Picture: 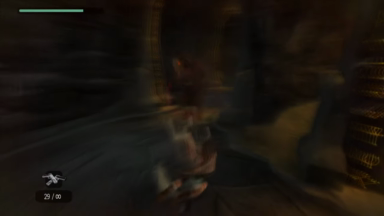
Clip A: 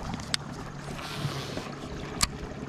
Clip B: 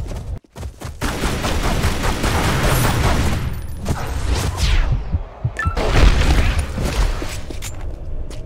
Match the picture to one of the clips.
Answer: B